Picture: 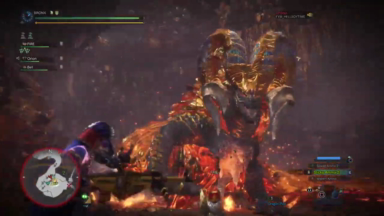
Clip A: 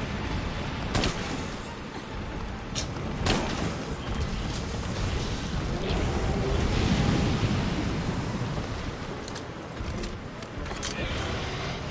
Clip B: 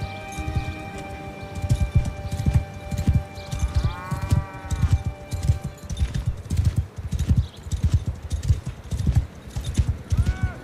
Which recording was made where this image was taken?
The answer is A